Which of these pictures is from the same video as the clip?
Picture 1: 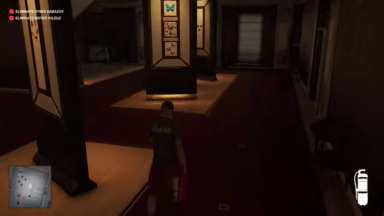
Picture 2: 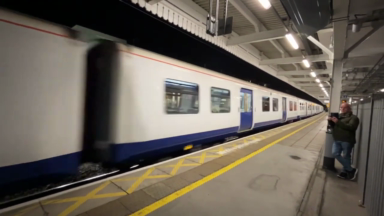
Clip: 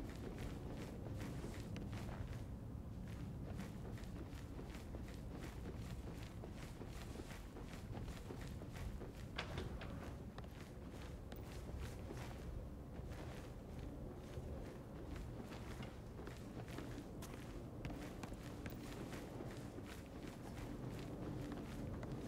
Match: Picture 1